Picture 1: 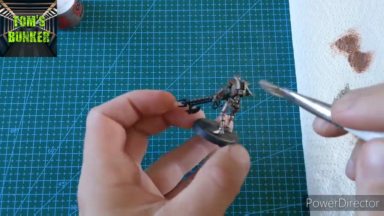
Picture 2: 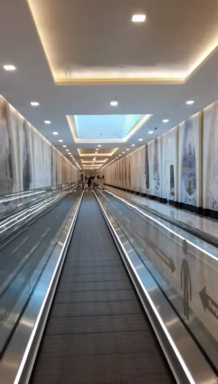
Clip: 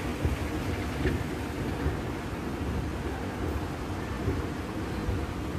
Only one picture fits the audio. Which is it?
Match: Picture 2